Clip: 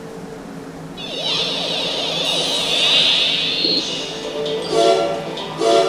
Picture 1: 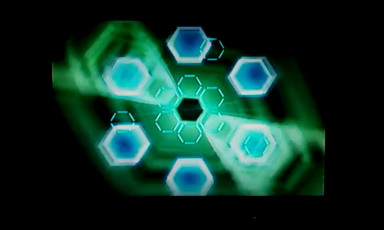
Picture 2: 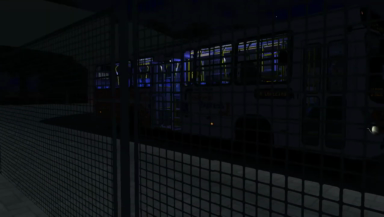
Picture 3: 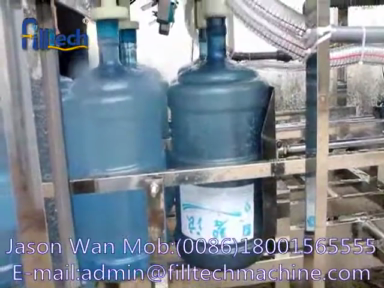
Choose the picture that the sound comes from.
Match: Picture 1